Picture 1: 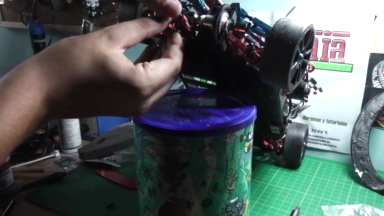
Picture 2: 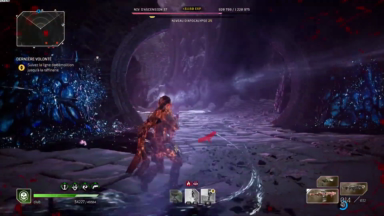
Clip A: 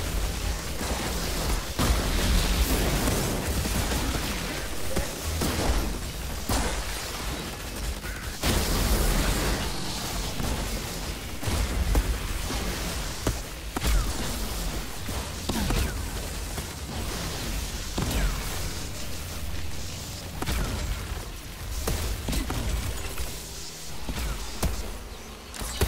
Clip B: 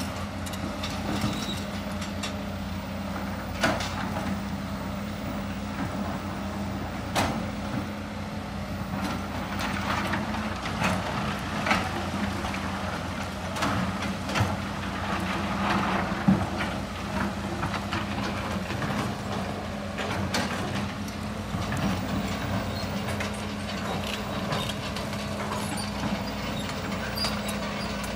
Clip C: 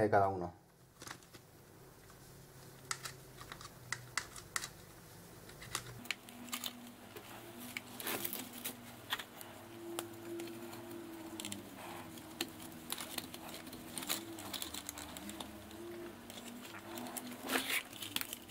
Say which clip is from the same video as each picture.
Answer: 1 C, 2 A